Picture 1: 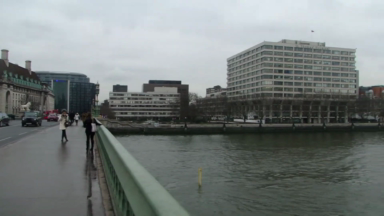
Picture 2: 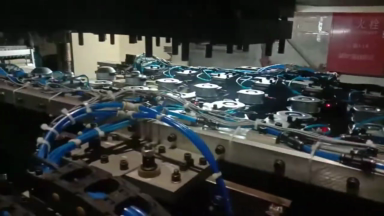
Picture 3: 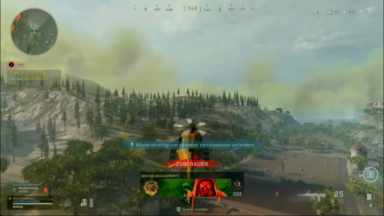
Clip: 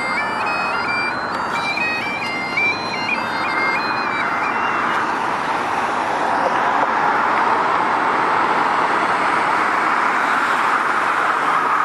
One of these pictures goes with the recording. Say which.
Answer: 1